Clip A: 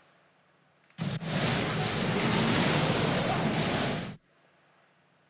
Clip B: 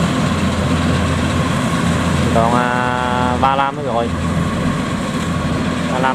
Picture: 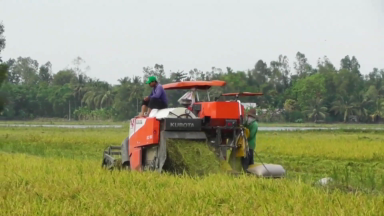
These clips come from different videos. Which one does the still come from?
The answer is B